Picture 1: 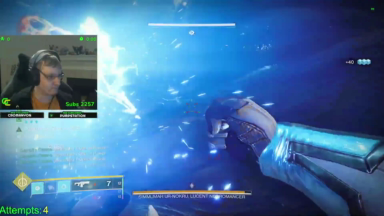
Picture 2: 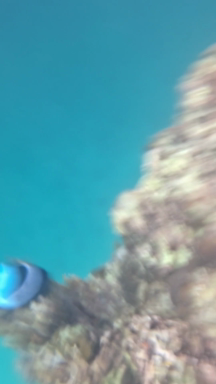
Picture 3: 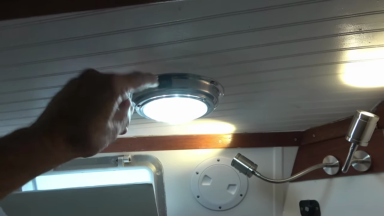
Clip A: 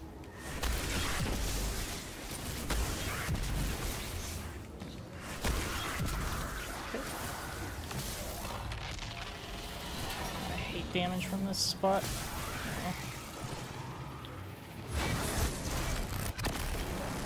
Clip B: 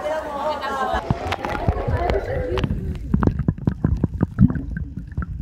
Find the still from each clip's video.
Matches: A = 1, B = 2